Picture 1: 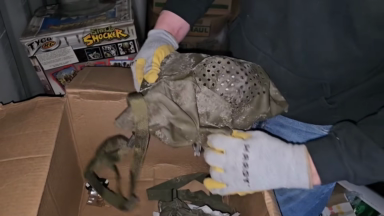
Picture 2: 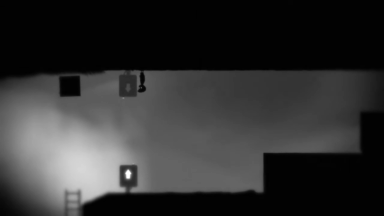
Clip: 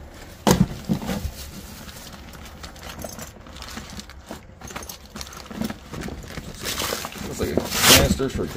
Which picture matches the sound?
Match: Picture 1